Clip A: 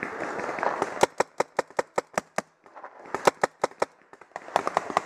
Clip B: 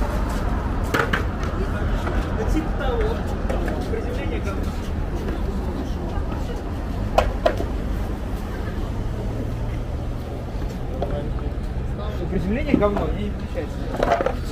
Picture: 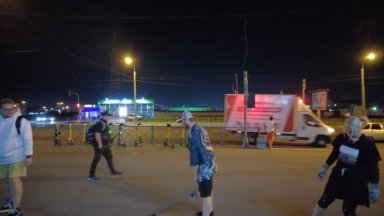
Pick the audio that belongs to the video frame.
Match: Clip B